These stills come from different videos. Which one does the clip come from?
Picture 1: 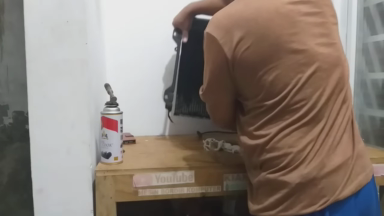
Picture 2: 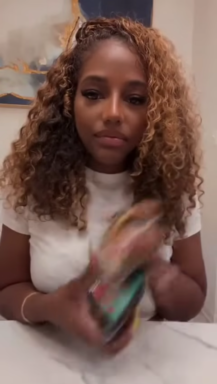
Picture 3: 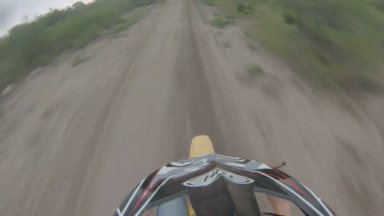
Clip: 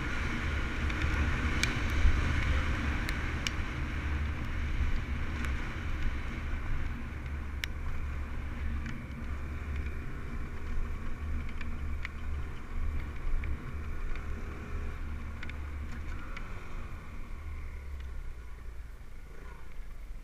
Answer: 3